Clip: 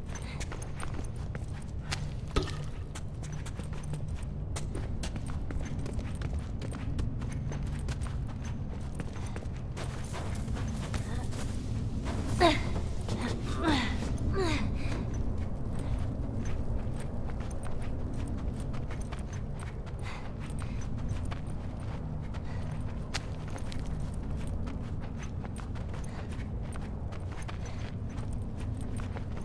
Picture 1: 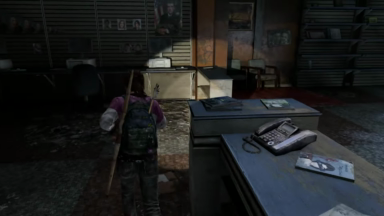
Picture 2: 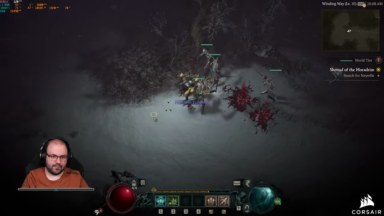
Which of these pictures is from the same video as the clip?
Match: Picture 1